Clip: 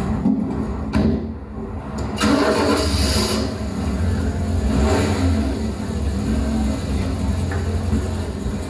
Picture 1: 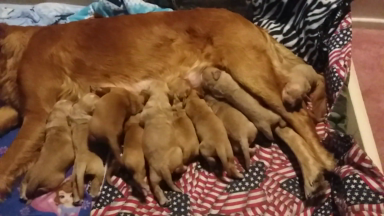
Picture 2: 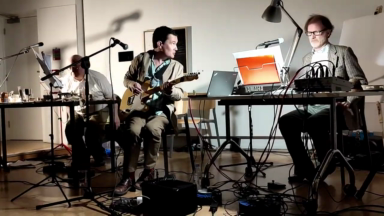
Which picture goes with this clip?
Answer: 2